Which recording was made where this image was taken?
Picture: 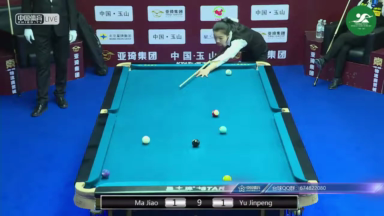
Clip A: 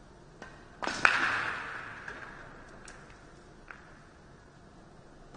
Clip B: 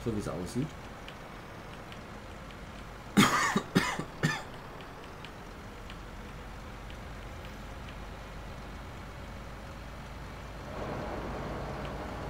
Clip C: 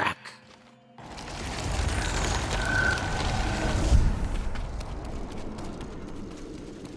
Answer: A